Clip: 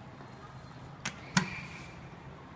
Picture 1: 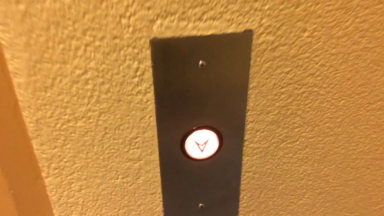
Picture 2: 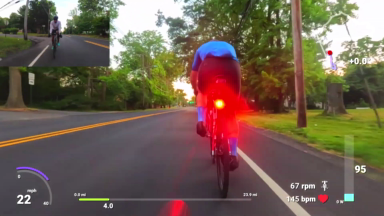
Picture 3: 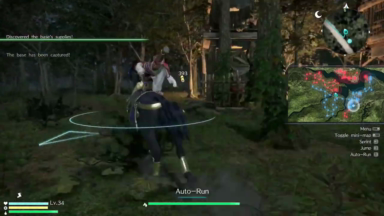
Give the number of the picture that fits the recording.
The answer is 1